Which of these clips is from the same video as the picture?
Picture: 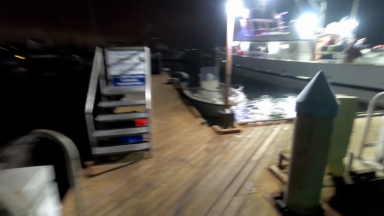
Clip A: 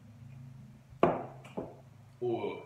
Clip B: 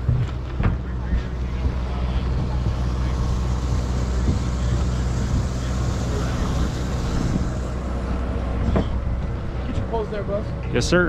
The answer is B